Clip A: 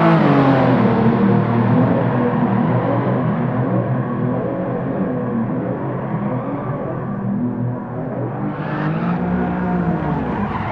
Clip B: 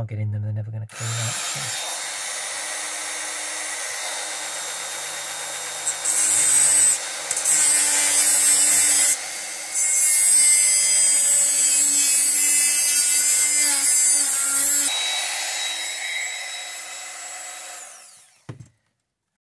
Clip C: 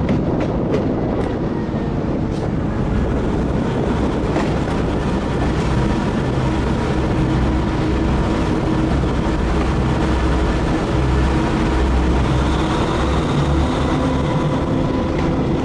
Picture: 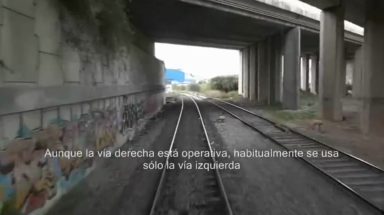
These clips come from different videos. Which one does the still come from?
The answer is C